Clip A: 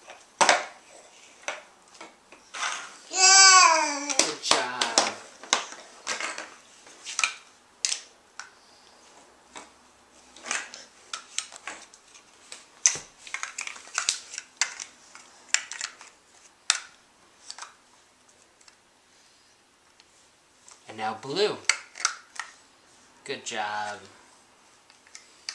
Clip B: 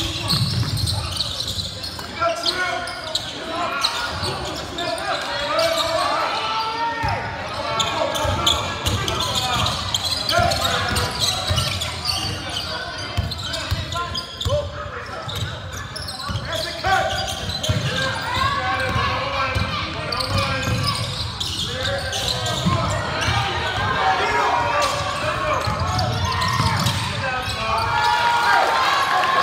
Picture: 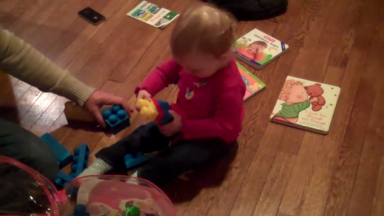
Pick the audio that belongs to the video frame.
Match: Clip A